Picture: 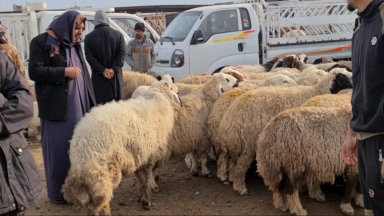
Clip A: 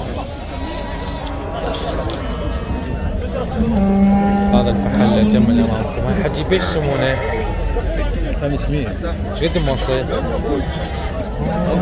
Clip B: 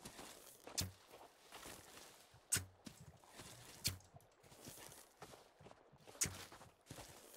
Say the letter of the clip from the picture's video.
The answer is A